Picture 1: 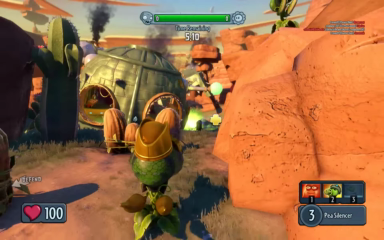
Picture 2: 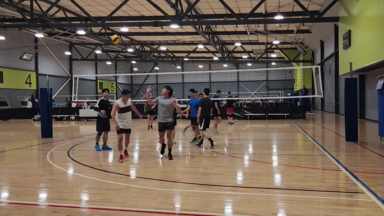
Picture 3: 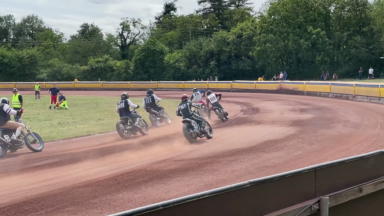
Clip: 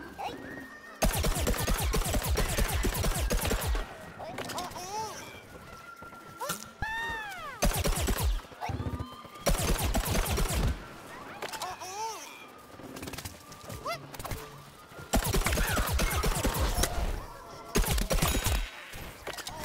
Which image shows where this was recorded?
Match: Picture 1